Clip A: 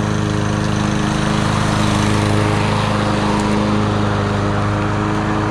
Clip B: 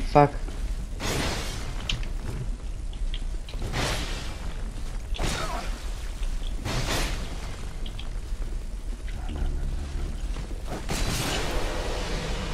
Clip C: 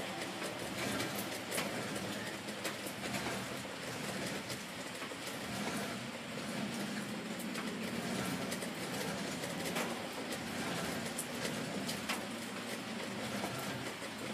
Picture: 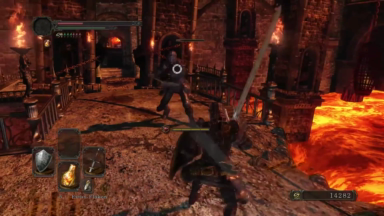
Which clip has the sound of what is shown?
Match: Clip B